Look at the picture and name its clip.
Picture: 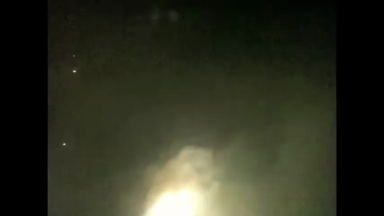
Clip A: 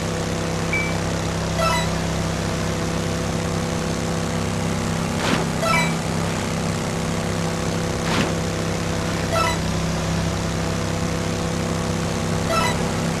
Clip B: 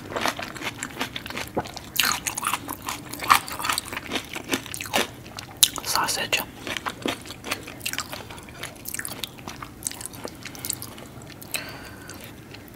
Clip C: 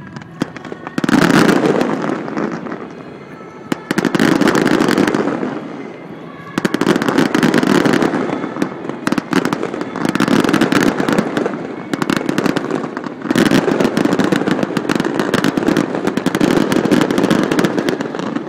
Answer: C